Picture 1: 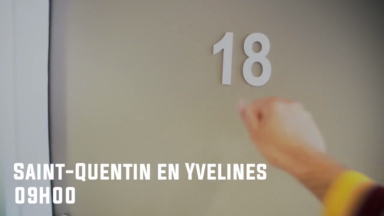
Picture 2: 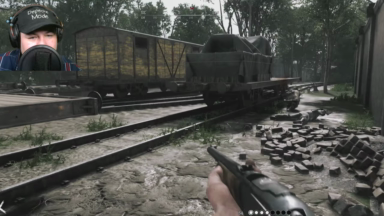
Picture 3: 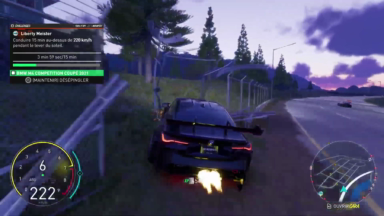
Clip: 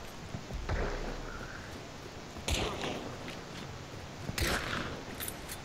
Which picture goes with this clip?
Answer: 2